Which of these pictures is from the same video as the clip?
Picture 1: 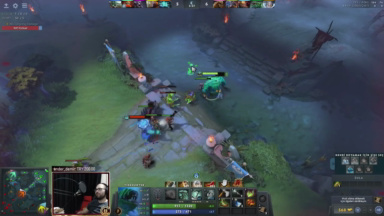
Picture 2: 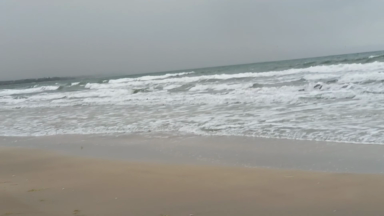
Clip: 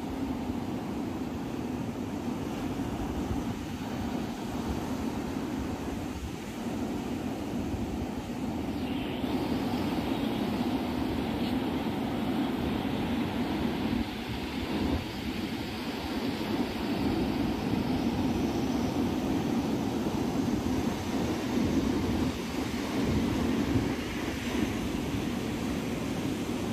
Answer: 2